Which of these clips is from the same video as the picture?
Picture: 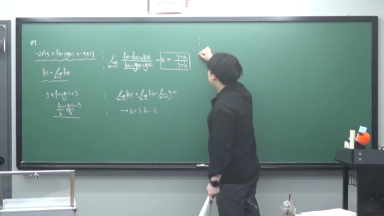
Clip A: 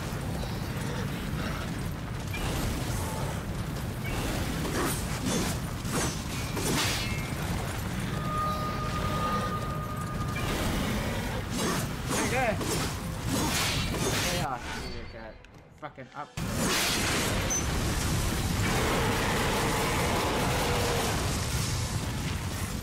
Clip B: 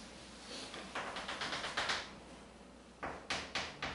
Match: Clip B